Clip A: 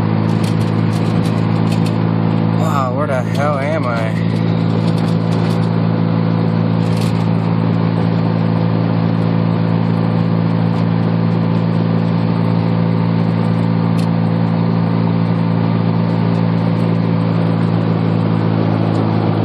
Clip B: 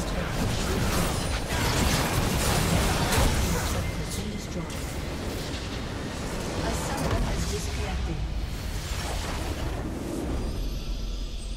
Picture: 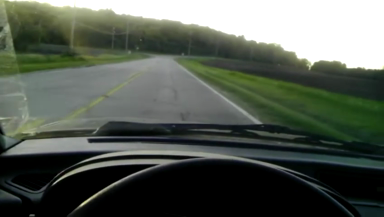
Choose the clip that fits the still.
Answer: A